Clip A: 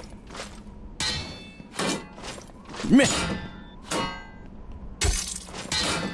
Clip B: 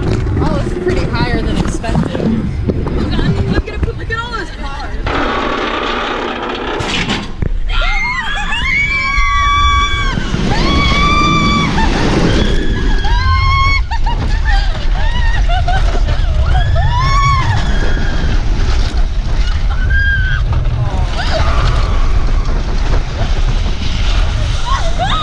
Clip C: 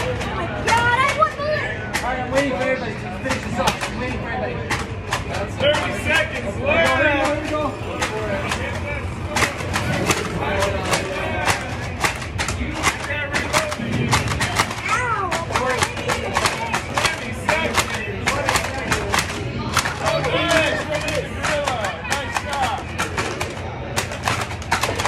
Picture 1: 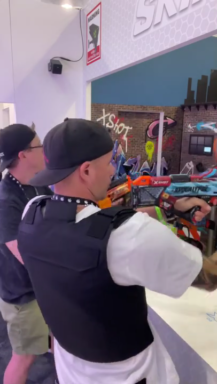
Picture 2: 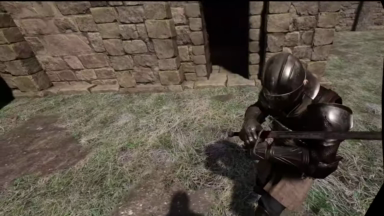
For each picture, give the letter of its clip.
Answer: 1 C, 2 A